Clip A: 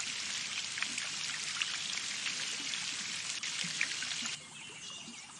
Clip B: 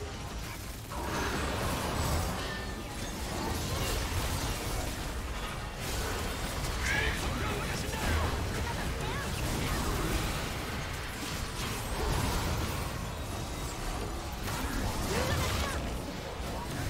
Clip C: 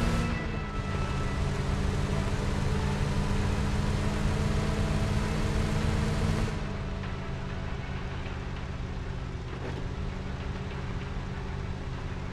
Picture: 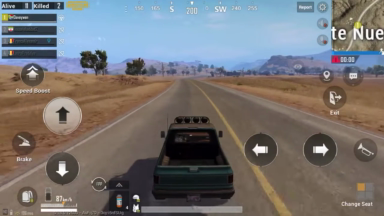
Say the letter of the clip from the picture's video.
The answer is C